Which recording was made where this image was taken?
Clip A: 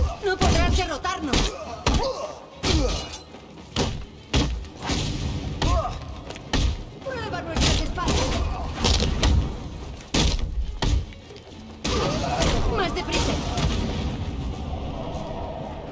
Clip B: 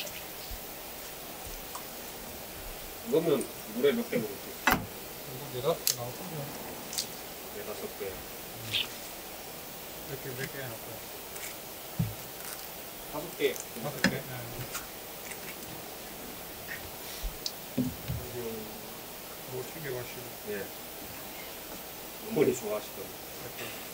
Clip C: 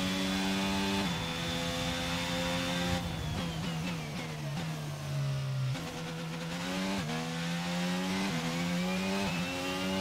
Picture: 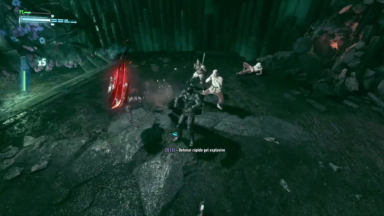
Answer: A